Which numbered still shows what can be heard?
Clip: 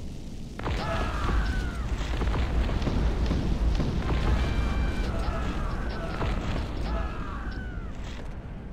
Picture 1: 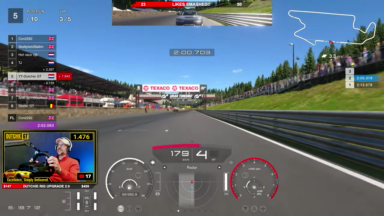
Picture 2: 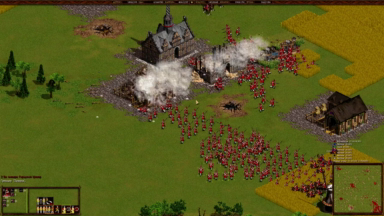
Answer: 2